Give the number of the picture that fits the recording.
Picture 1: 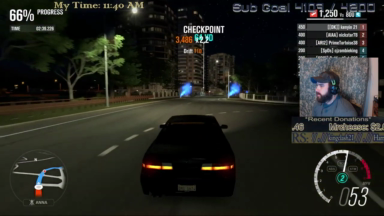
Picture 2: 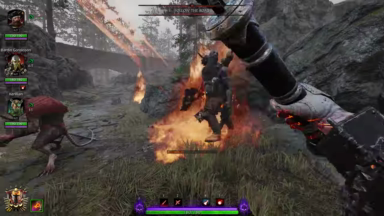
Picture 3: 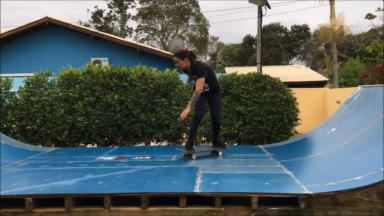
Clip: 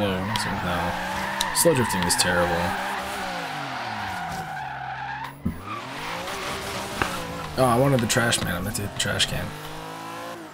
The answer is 1